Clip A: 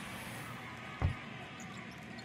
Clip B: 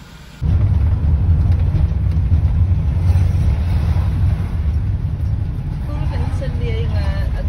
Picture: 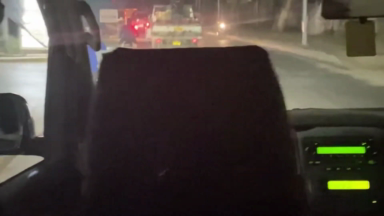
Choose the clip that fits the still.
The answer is B